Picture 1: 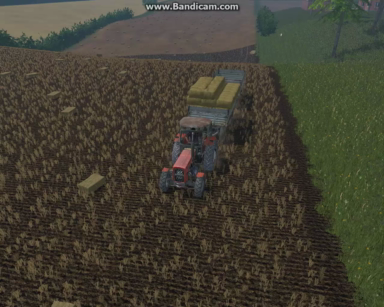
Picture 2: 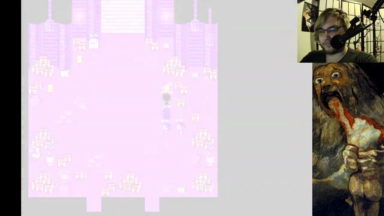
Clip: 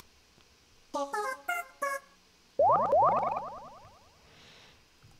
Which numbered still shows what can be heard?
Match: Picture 2